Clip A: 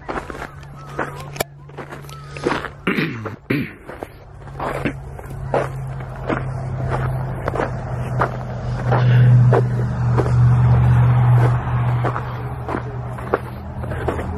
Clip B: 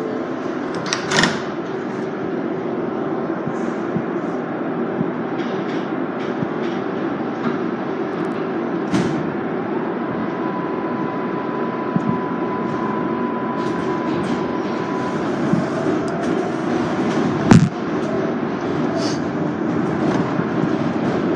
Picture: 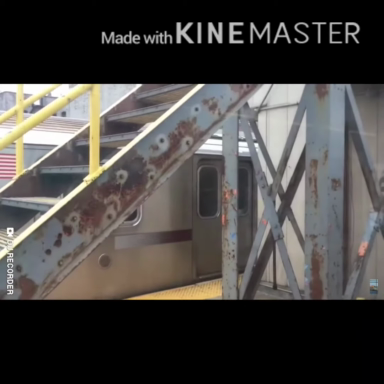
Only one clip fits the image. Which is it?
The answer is B